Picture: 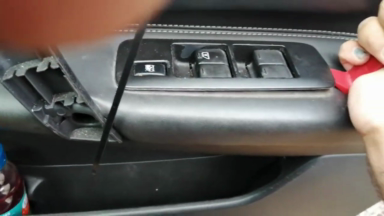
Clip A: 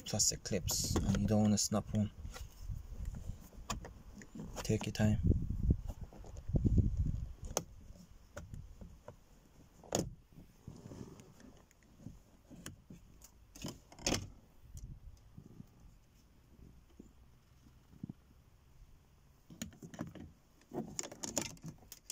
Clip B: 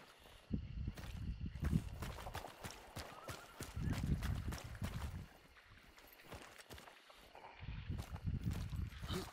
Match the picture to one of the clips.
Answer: A